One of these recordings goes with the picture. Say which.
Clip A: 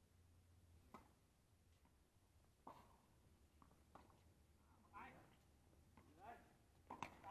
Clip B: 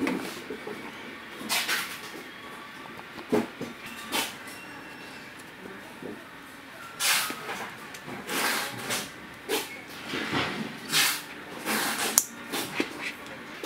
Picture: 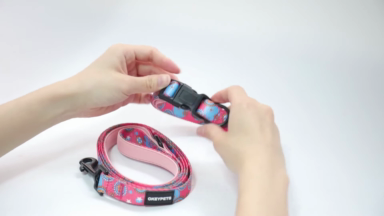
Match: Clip B